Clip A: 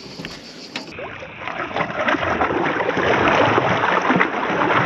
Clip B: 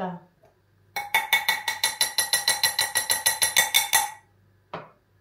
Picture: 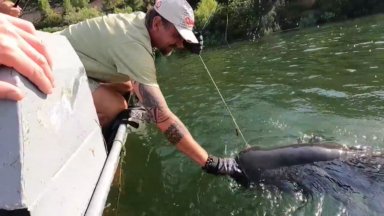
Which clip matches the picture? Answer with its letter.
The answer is A